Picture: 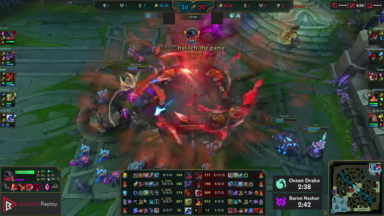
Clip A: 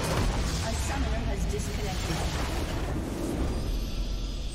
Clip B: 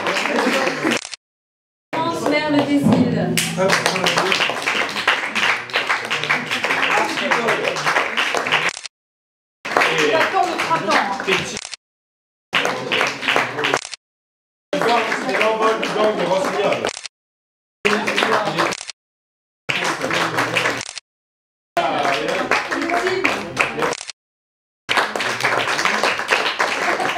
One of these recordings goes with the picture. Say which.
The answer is A